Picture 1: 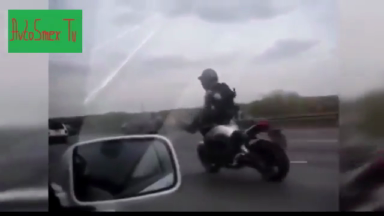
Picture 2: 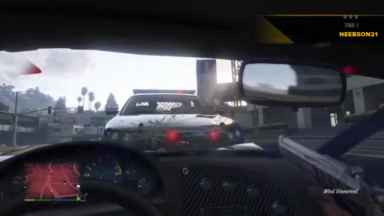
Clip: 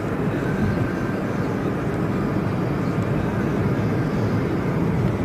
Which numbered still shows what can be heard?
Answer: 1